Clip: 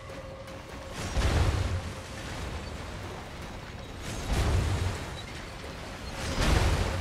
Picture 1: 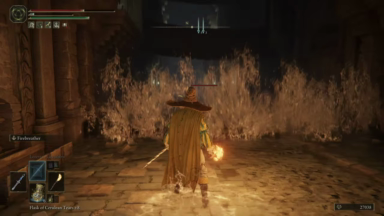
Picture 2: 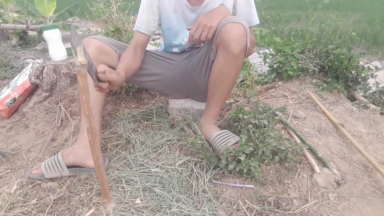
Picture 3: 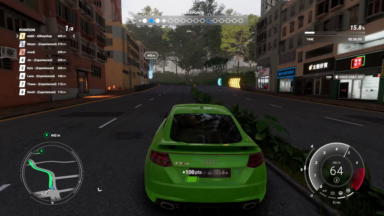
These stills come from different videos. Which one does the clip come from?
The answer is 1